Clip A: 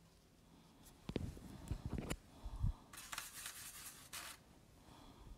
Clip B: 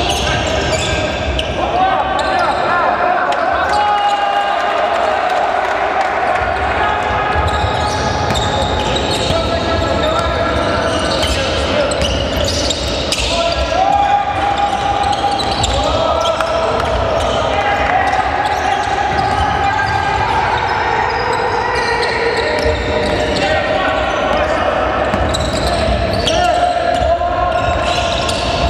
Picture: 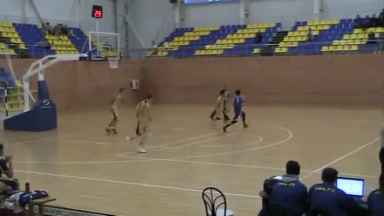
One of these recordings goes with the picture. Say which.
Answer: B